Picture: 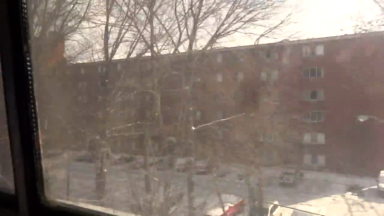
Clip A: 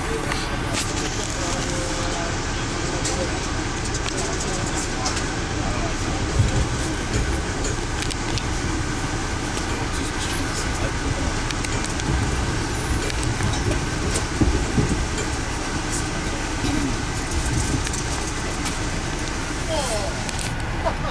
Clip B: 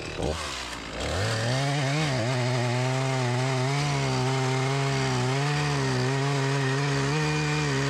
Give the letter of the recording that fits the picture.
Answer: A